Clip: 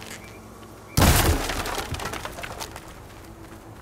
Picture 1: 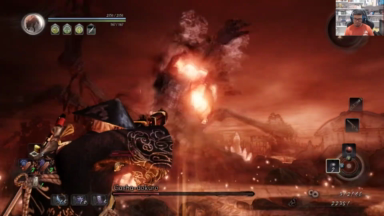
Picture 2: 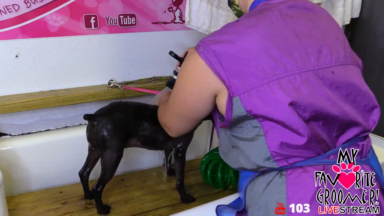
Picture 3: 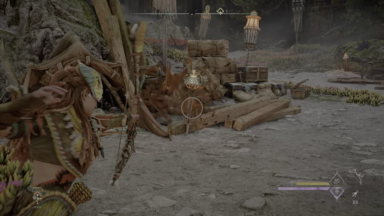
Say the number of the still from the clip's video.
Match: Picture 3